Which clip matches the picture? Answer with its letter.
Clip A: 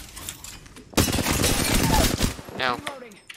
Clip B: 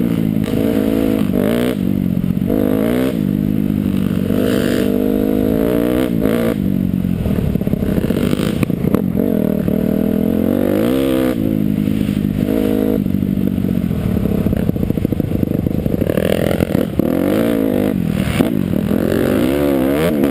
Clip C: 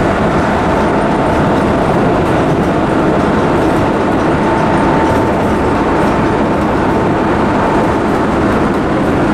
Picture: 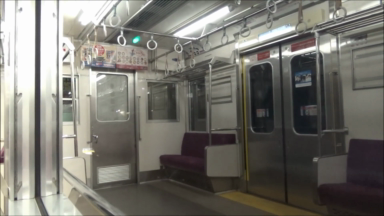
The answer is C